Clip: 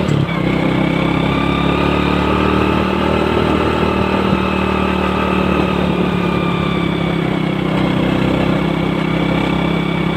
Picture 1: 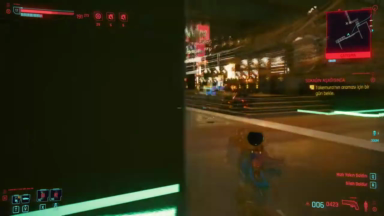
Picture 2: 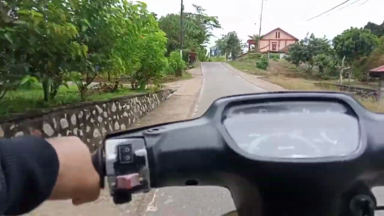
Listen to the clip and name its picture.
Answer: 2